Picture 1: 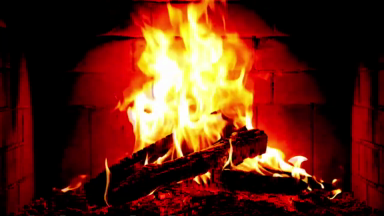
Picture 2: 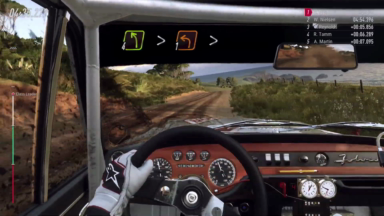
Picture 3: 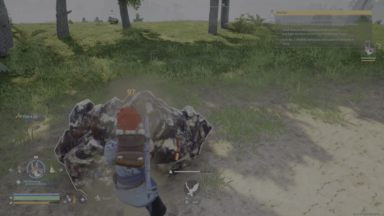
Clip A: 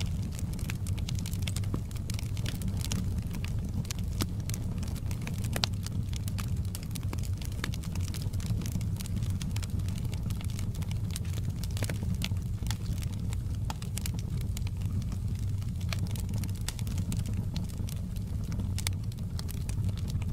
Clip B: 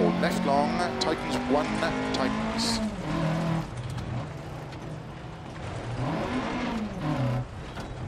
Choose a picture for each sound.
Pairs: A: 1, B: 2